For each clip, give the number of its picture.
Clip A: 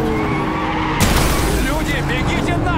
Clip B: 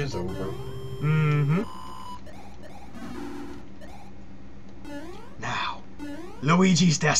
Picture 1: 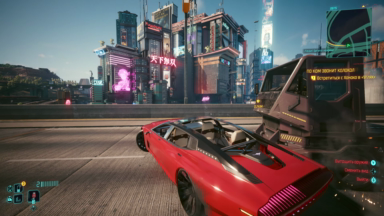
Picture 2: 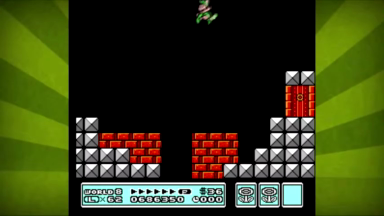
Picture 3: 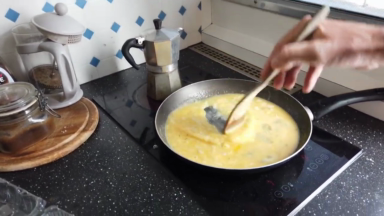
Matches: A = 1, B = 2